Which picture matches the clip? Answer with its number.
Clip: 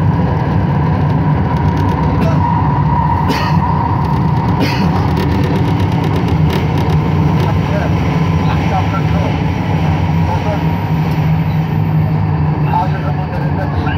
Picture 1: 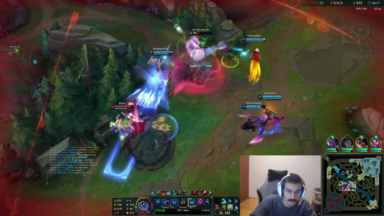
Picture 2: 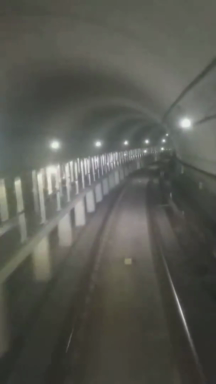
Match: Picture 2